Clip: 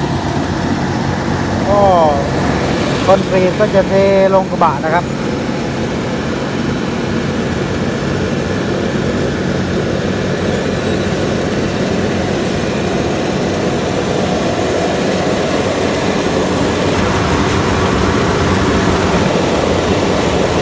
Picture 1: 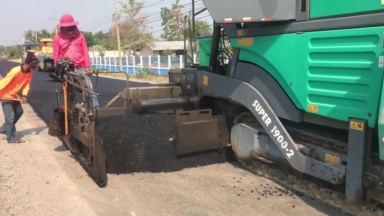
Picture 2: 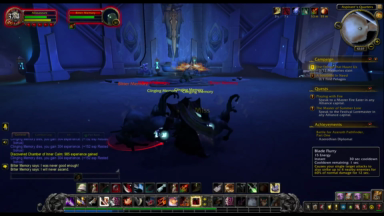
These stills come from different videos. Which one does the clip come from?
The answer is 1